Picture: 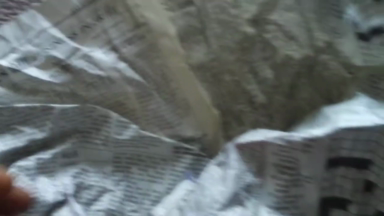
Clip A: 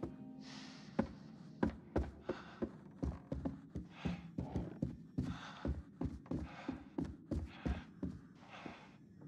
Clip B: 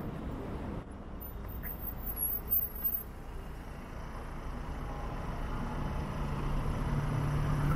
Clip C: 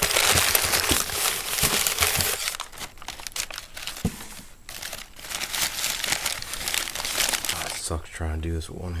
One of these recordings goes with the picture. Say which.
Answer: C